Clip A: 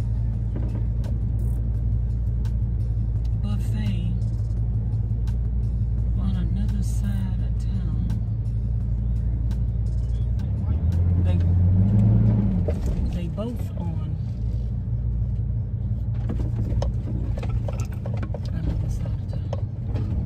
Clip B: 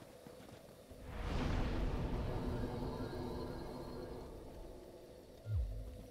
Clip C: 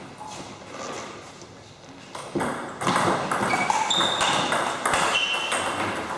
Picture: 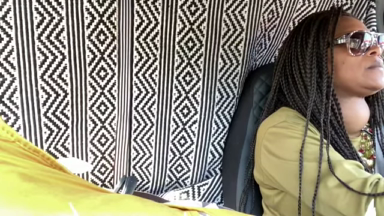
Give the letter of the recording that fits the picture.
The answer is A